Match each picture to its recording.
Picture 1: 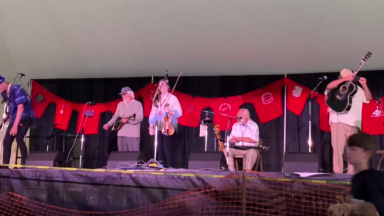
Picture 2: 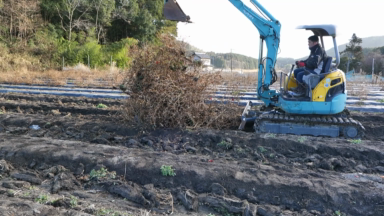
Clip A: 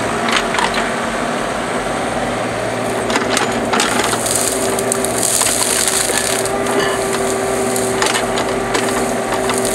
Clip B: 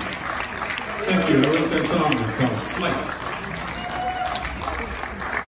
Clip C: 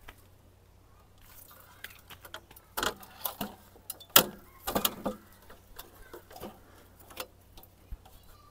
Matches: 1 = B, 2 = A